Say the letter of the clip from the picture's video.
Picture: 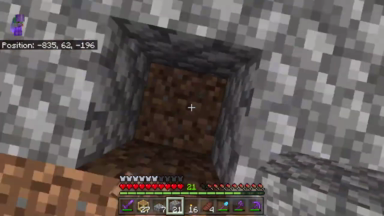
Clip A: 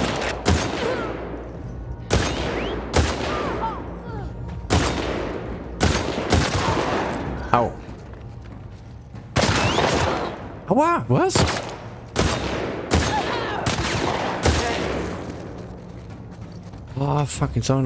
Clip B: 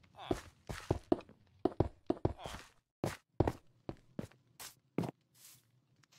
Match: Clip B